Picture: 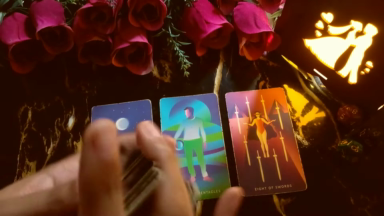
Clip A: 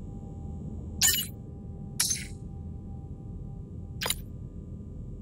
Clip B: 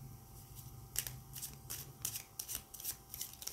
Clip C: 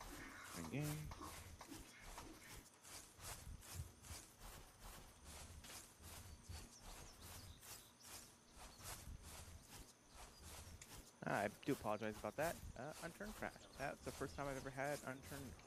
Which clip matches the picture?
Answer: B